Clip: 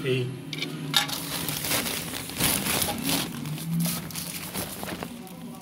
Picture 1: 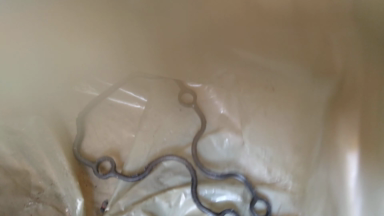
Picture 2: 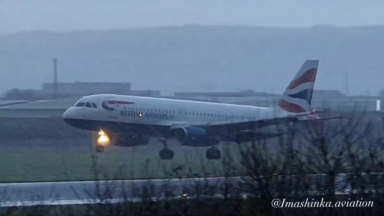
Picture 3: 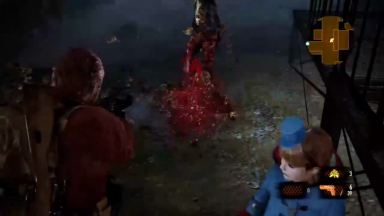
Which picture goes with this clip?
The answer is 1